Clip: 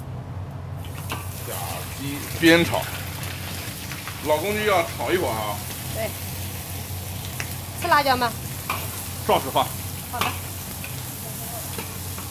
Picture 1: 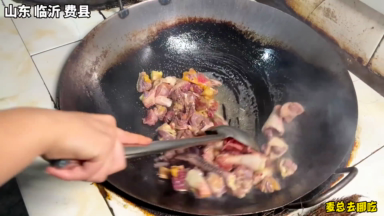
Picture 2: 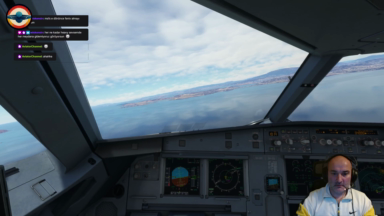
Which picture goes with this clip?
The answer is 1